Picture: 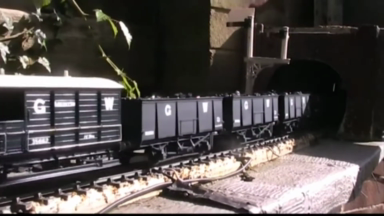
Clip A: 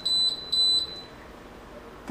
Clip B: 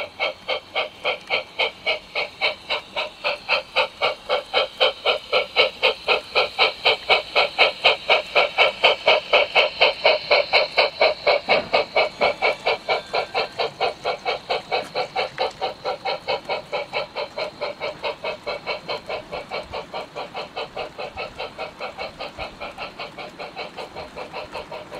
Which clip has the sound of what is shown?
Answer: B